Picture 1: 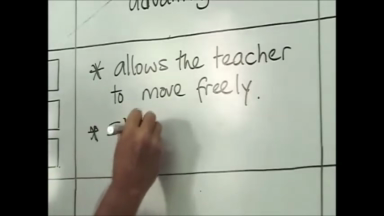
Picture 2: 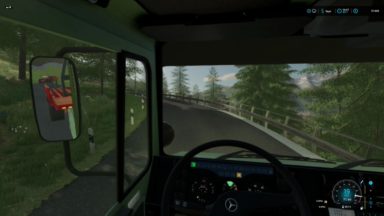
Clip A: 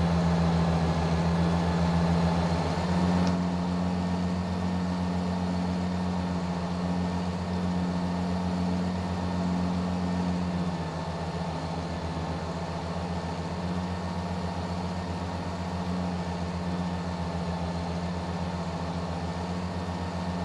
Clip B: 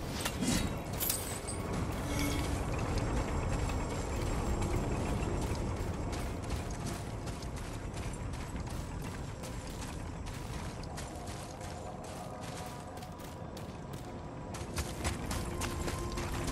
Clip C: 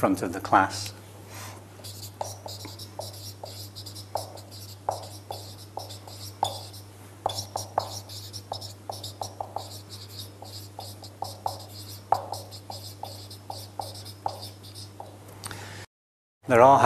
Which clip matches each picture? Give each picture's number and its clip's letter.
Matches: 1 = C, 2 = A